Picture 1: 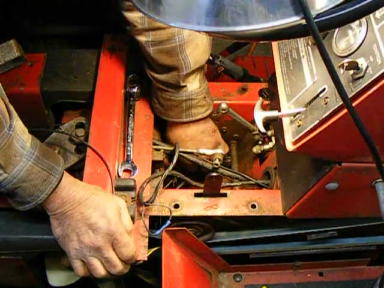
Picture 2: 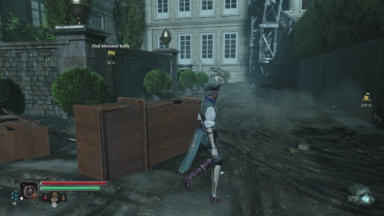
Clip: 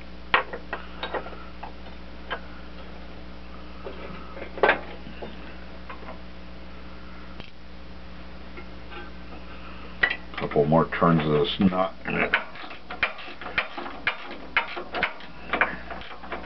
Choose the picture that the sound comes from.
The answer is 1